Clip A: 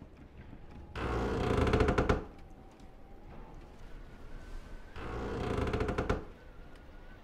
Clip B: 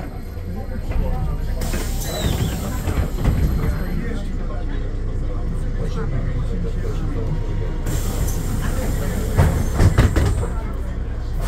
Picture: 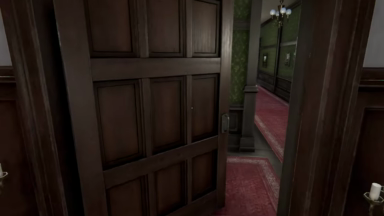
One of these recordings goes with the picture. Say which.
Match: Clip A